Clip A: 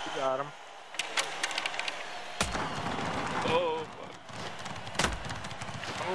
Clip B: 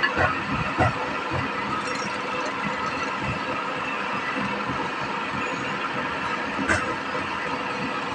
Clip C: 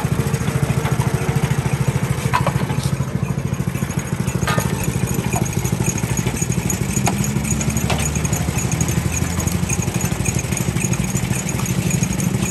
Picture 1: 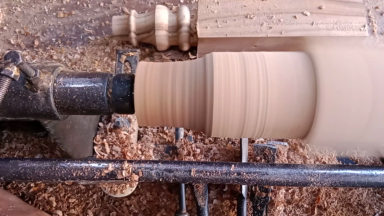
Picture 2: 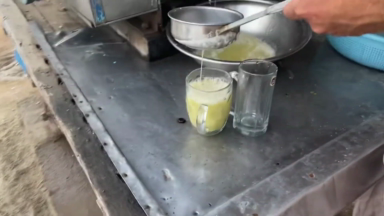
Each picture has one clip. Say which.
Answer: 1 B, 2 C